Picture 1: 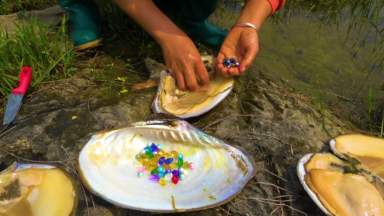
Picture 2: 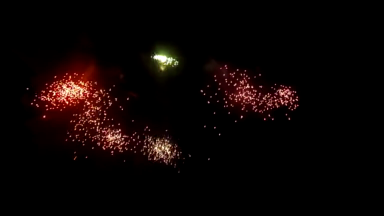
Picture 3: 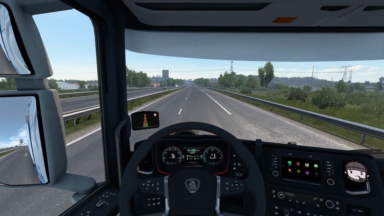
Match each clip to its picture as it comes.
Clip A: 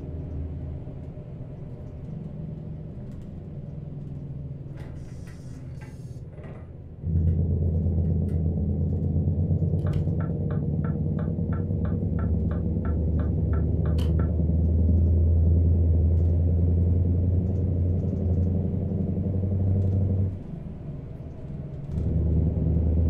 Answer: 3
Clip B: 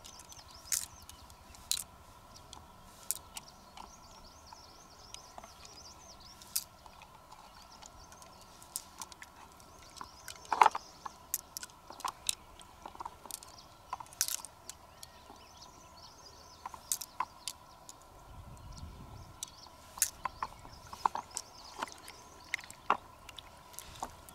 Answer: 1